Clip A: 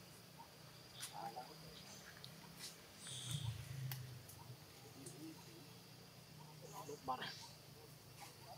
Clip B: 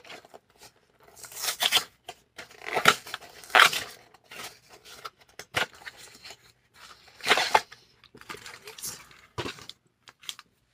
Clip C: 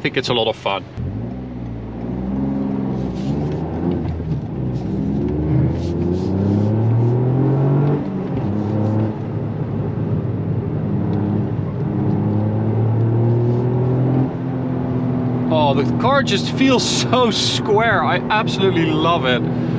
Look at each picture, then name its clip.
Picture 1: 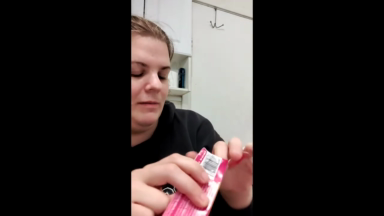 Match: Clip B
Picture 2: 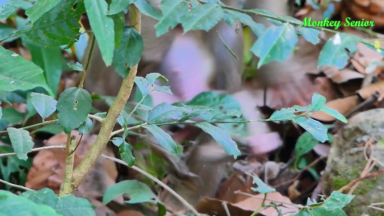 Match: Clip A